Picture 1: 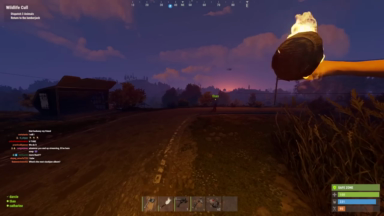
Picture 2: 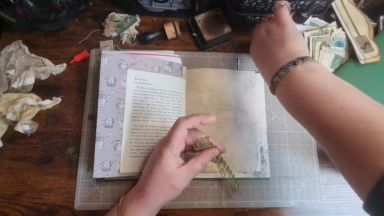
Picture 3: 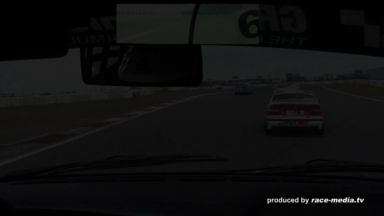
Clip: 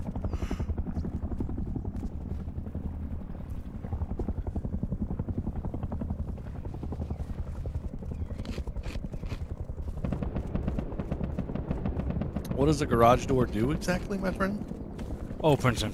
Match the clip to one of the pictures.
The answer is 1